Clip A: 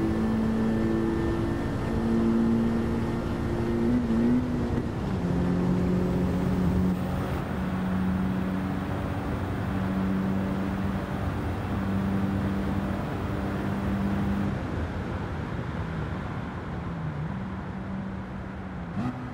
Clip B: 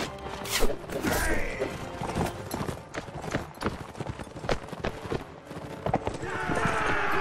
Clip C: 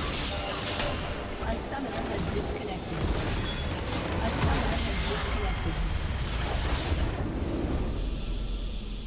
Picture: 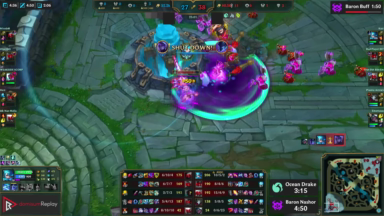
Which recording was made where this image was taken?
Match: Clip C